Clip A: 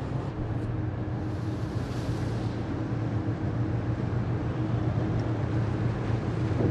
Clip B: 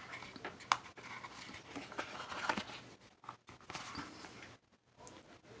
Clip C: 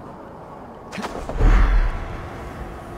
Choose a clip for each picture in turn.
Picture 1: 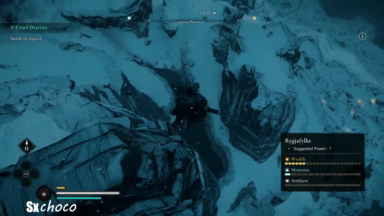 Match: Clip C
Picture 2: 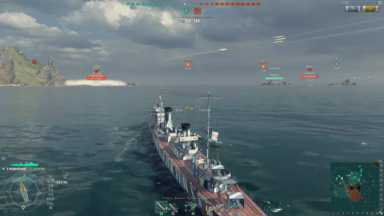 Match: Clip A